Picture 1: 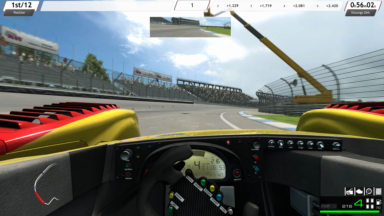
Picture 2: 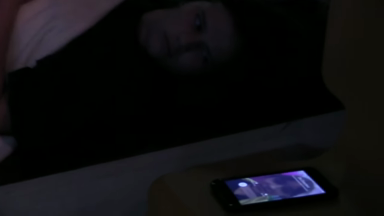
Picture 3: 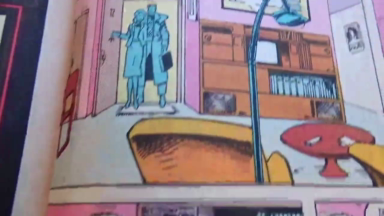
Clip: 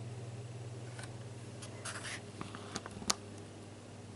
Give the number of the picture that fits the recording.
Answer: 3